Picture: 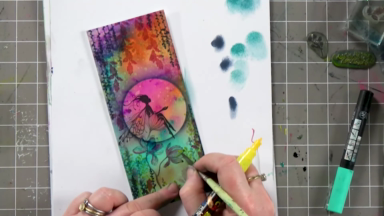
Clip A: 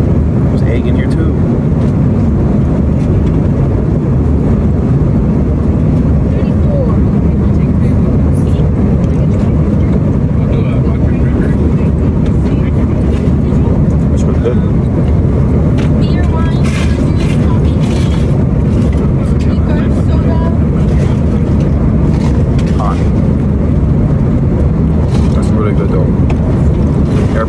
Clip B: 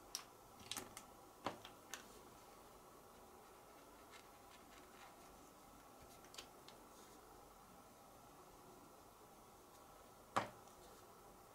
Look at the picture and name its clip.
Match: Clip B